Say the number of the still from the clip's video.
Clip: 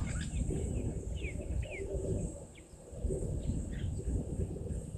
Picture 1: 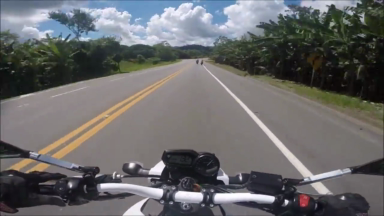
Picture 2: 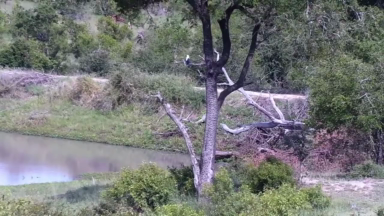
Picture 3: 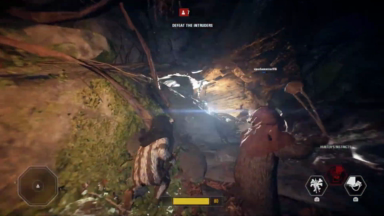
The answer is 2